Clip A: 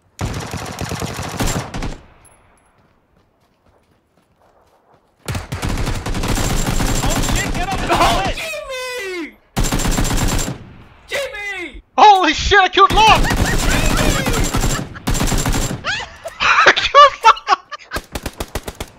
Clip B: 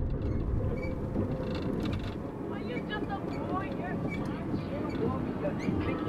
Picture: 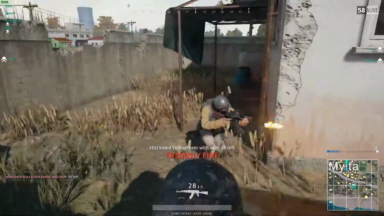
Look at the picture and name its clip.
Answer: A